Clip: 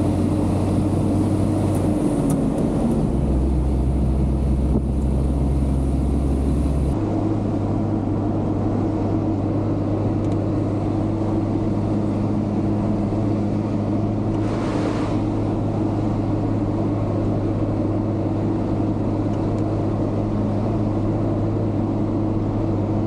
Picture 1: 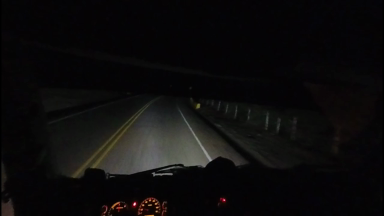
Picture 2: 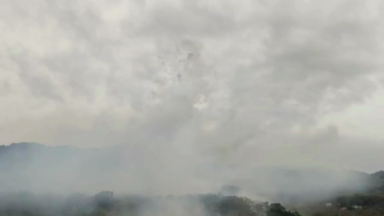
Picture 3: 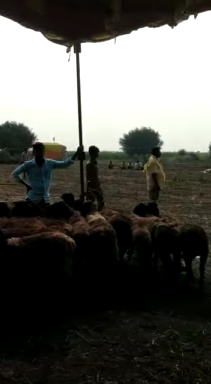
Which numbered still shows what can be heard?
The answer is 1